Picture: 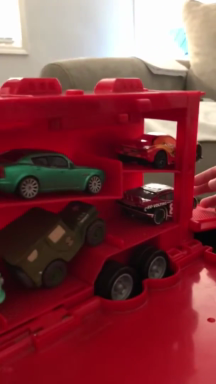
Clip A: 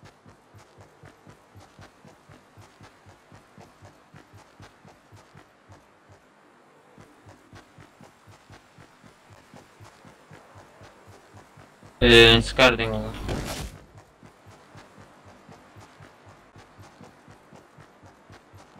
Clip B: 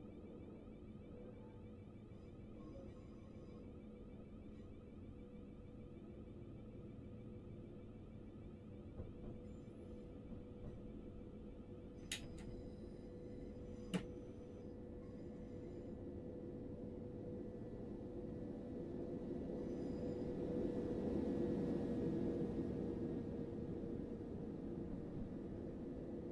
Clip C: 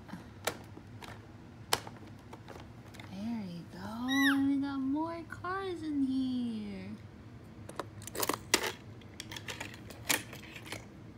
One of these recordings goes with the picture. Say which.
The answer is C